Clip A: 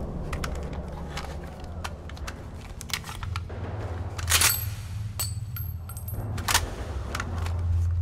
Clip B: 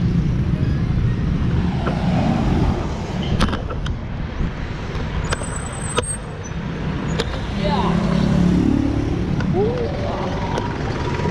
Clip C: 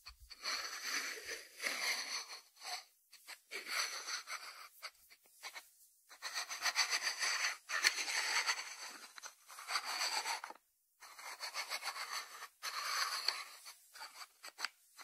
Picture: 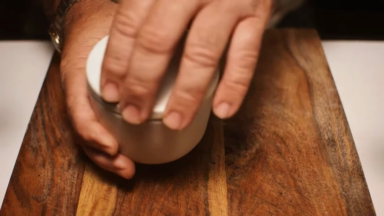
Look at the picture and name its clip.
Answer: C